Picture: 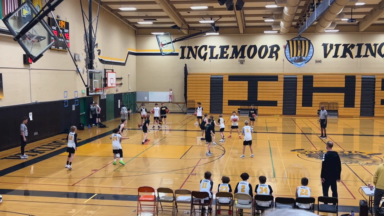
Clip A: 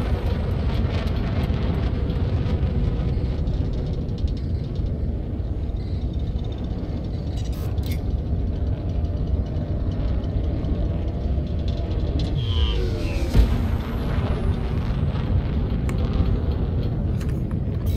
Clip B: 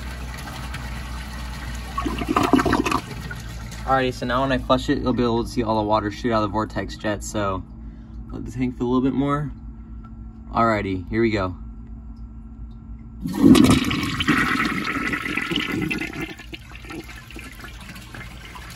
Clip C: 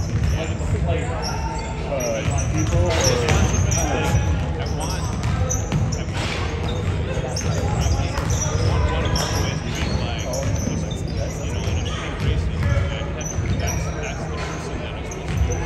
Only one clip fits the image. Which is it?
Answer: C